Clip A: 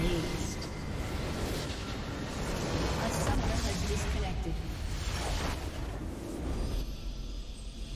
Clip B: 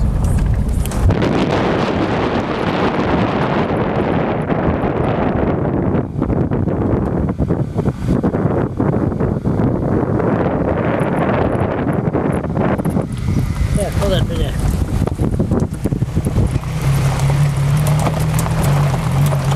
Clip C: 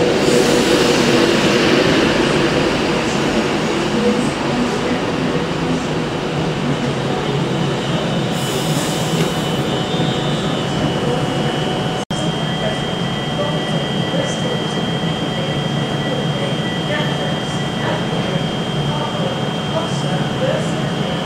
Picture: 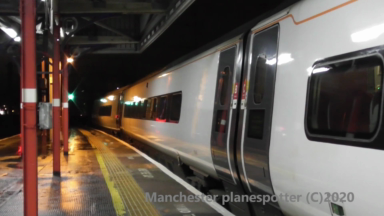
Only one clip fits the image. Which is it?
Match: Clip C